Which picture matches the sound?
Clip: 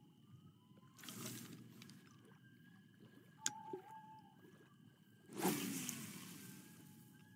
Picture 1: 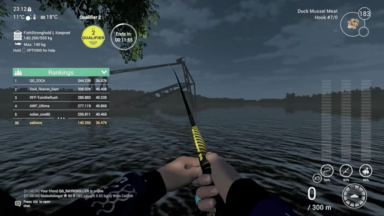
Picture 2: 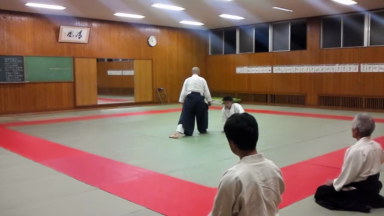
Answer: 1